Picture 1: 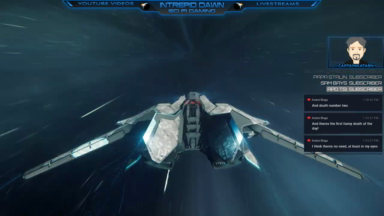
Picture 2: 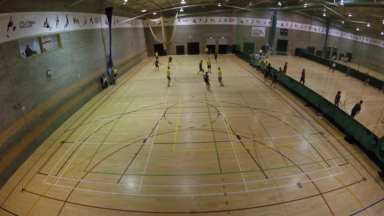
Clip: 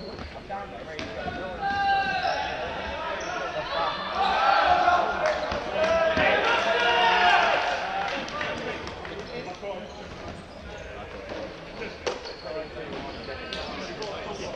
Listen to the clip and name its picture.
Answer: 2